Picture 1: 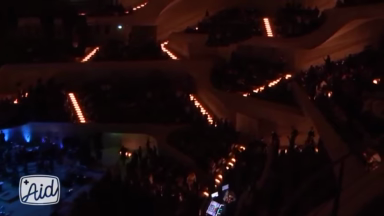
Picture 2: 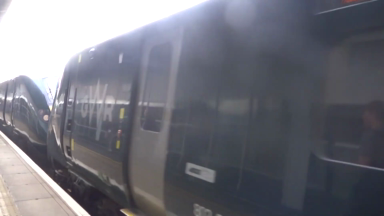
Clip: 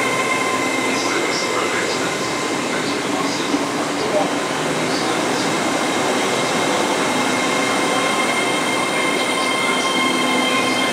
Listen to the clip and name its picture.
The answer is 2